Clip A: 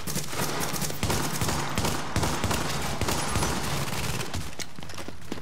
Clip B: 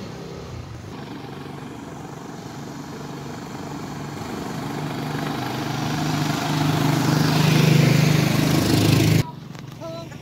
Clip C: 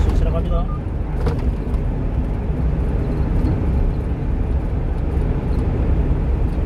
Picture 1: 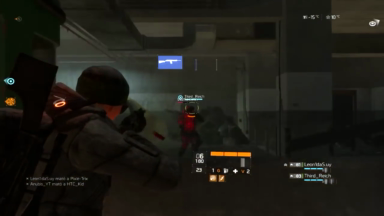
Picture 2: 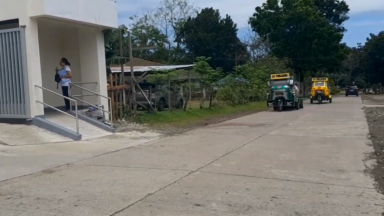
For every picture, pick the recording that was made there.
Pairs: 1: A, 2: B